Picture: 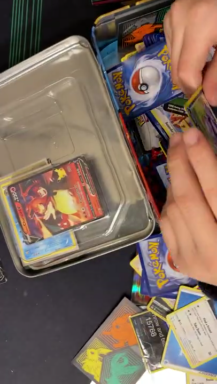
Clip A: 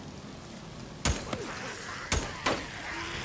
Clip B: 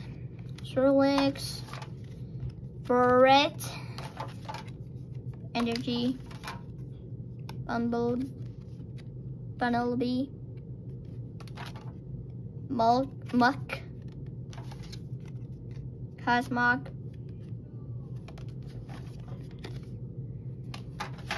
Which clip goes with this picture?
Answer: B